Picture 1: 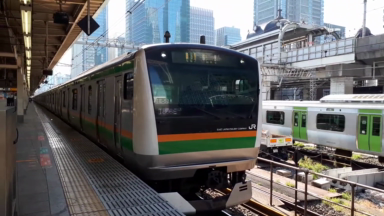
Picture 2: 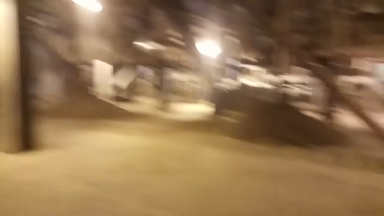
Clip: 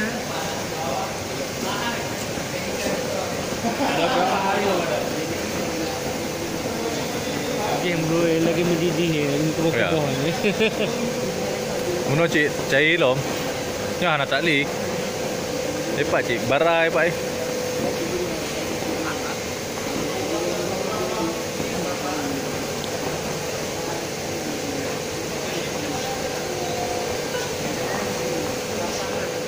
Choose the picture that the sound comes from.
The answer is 2